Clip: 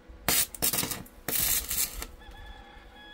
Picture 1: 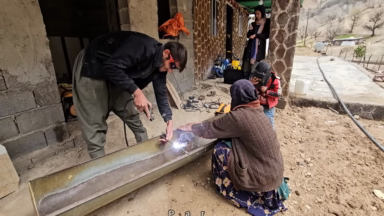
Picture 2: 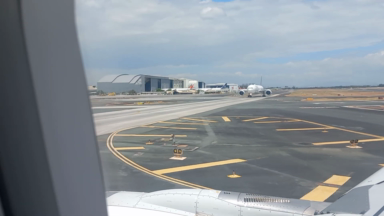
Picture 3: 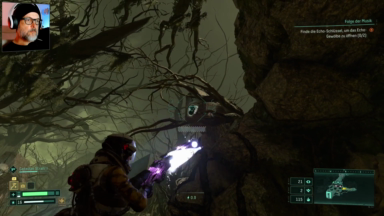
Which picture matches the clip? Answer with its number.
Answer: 1